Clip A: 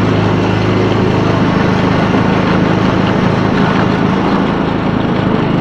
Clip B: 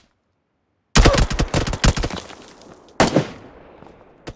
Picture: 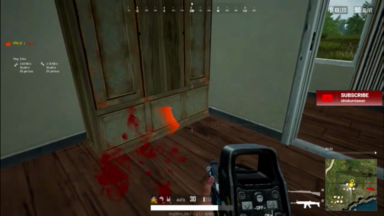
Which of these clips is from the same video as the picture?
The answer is B